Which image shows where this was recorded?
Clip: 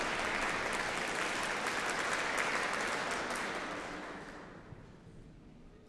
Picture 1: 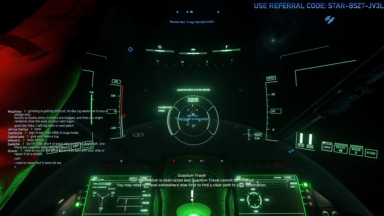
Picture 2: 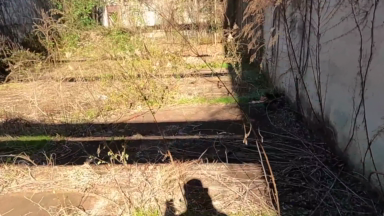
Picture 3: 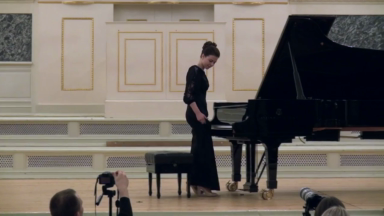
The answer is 3